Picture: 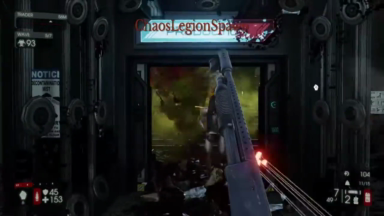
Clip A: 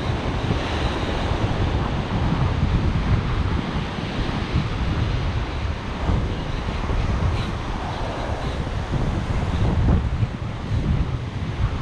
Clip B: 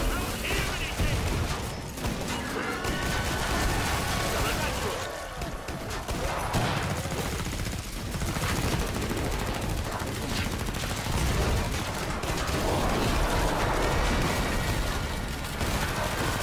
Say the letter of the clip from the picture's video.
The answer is B